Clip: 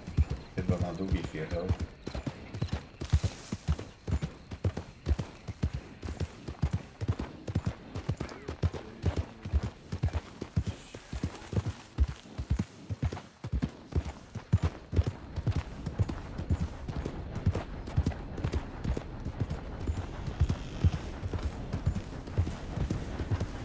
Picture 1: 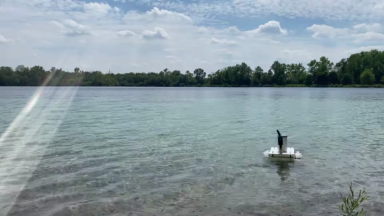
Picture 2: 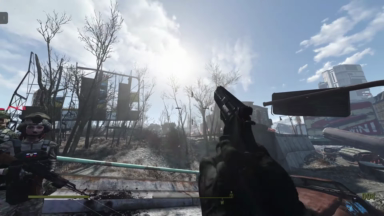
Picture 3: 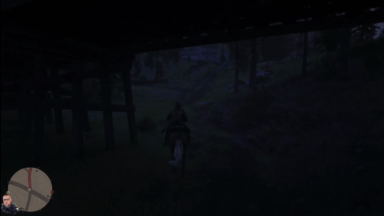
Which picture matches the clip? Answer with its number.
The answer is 3